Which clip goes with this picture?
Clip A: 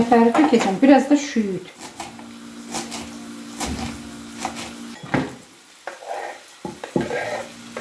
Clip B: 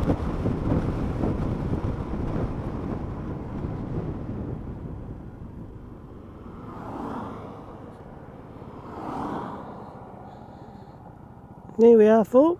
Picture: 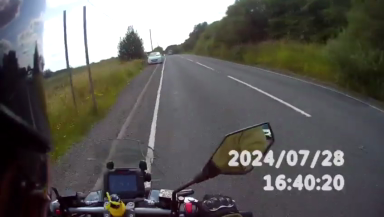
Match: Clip B